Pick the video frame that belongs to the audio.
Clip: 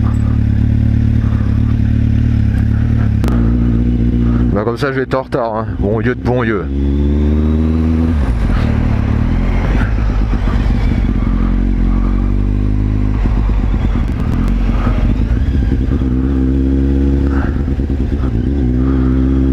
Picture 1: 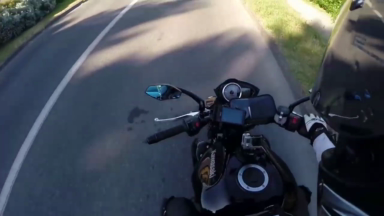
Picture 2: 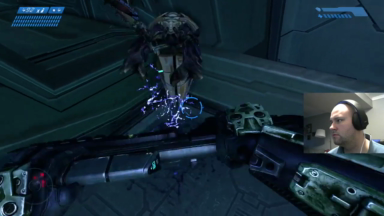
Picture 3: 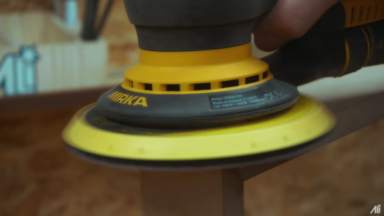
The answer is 1